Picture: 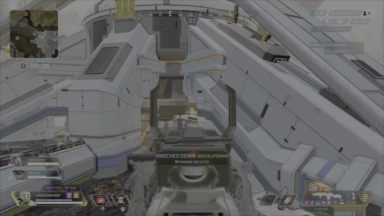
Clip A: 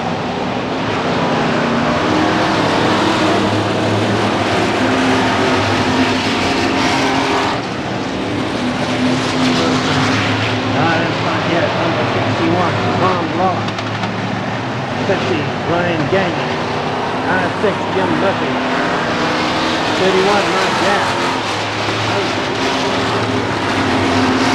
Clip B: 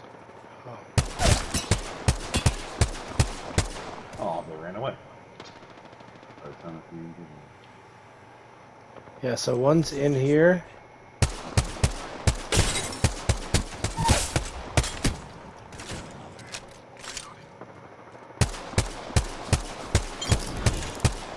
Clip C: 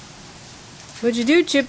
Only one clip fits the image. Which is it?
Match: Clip B